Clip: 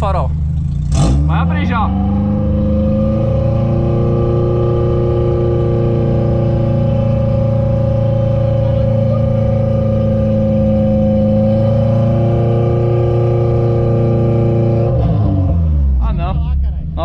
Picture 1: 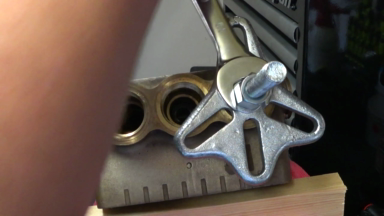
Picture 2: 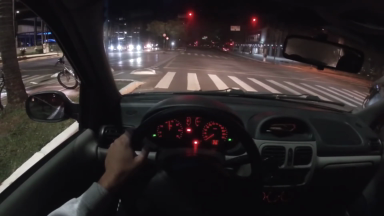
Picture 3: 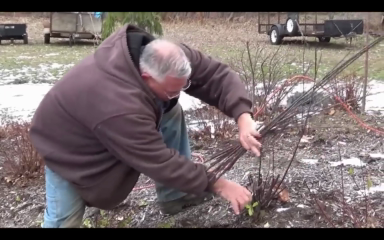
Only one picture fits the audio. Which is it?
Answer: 2